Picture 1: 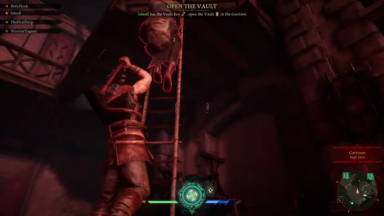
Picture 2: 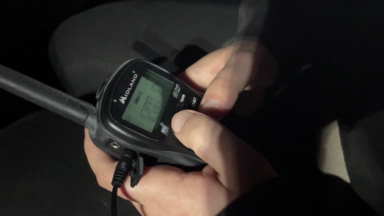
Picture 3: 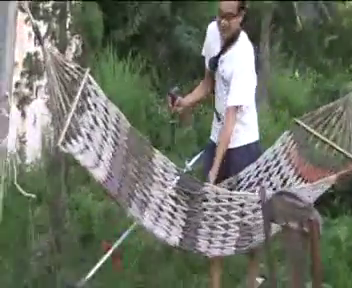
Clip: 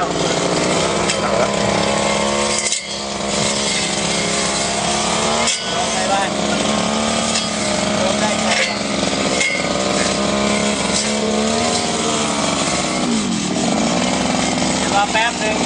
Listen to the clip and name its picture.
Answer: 3